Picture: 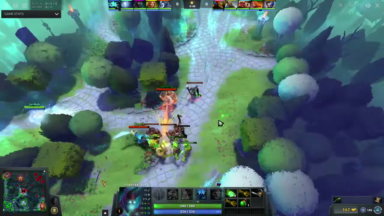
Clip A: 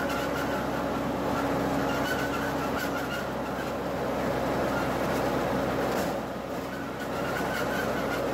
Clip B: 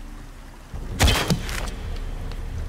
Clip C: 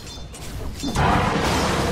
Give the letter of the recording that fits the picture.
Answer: C